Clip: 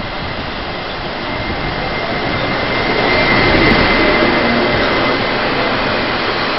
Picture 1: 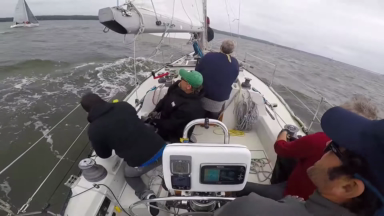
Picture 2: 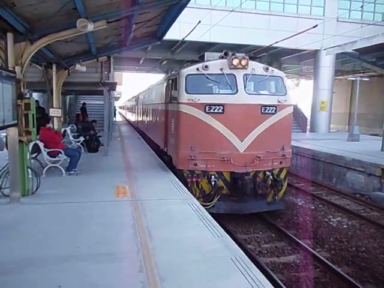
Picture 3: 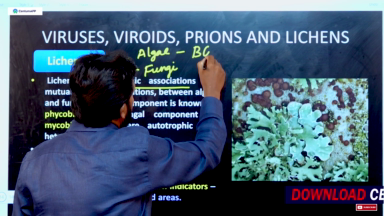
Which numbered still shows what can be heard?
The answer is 2